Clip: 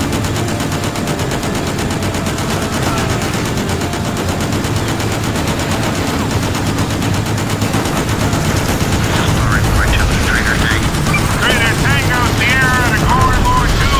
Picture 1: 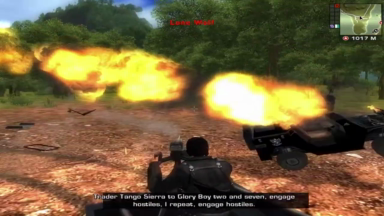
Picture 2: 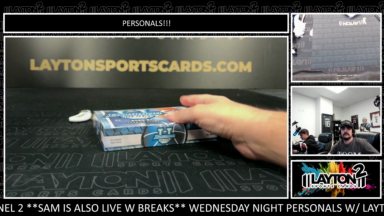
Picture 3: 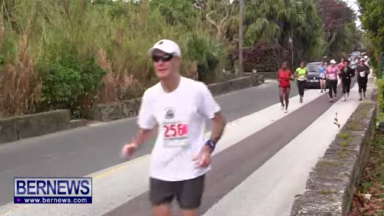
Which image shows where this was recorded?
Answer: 1